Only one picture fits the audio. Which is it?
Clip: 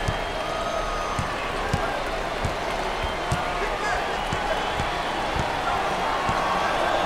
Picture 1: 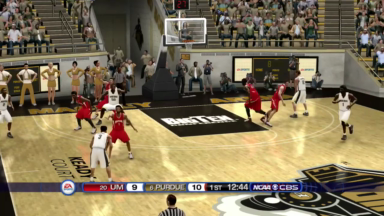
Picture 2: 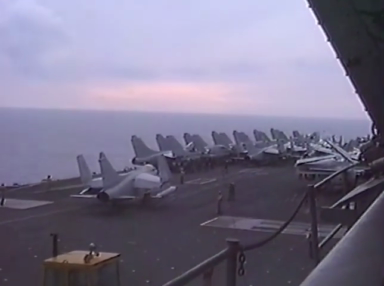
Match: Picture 1